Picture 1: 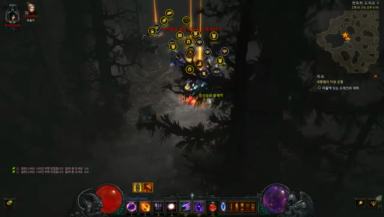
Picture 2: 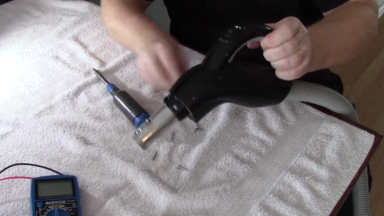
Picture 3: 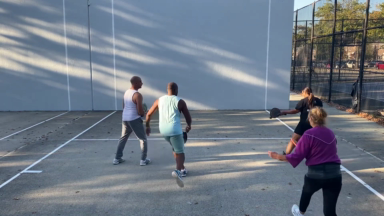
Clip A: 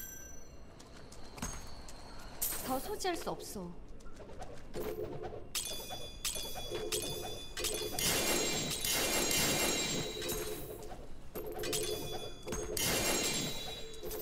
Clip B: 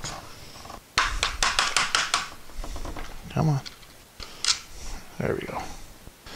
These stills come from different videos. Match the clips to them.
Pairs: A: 1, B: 2